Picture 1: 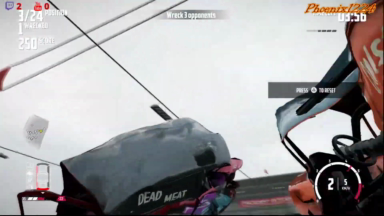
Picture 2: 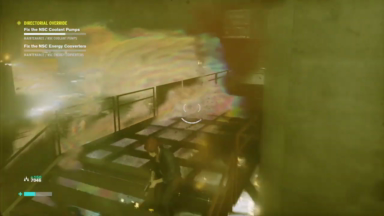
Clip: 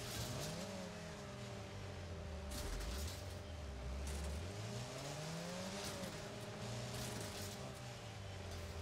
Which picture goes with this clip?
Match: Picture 1